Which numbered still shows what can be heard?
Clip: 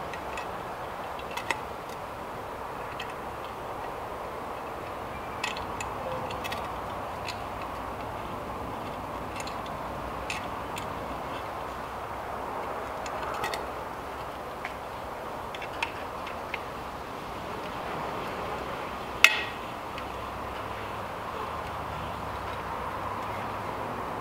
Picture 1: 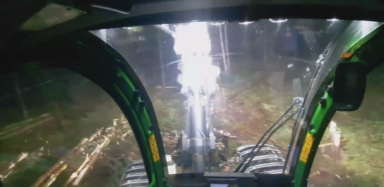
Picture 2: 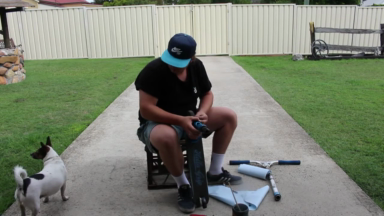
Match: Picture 2